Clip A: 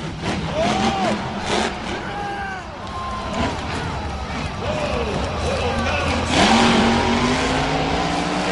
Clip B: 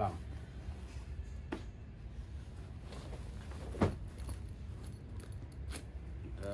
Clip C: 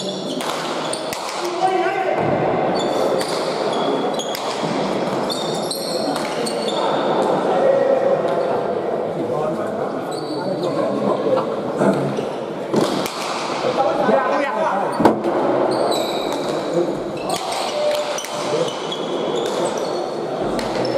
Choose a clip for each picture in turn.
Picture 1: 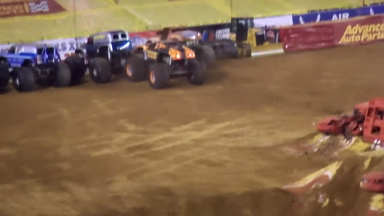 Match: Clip A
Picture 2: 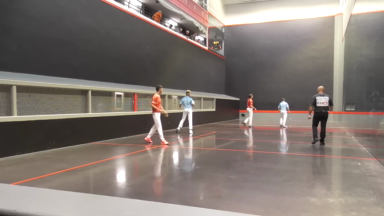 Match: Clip C